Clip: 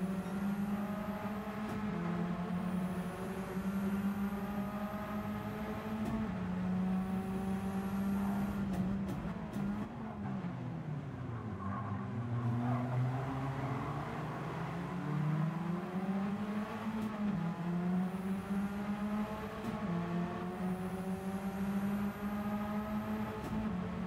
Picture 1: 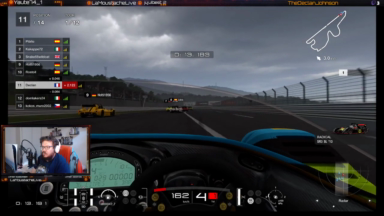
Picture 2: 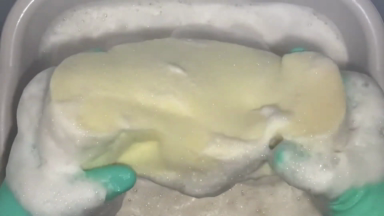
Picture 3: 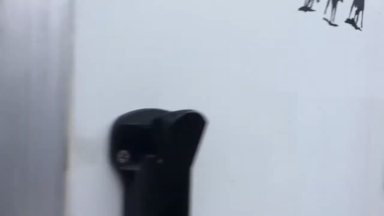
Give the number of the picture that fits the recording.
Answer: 1